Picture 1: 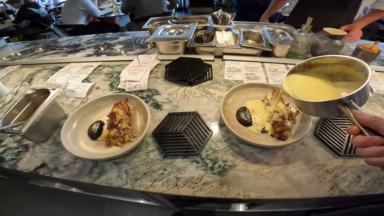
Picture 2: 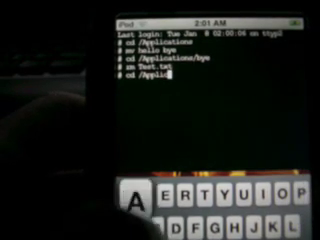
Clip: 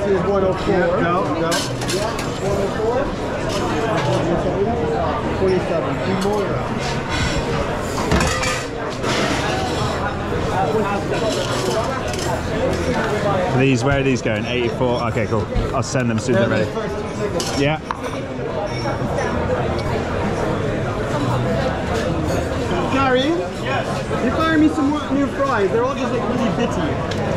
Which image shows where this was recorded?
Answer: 1